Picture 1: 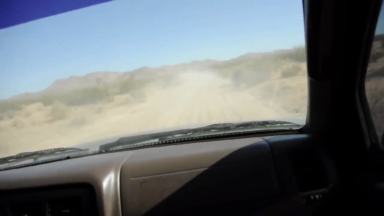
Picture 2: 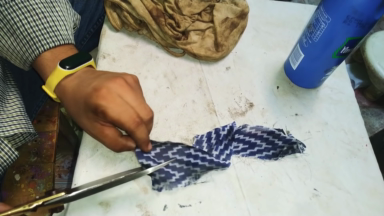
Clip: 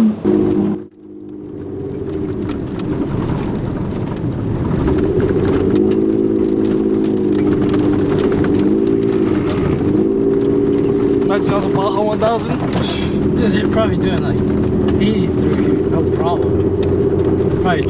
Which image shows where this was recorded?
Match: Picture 1